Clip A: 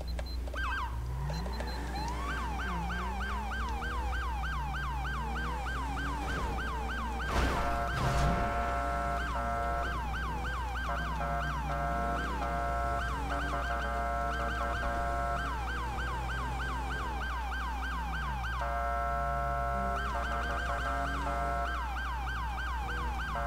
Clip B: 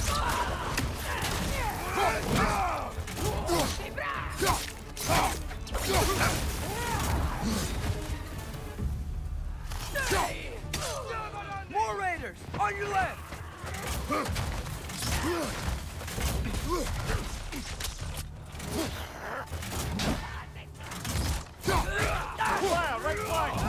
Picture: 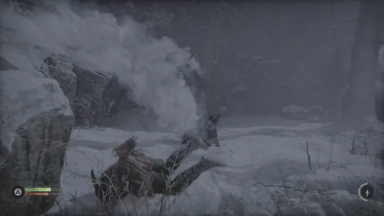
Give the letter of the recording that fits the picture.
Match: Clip B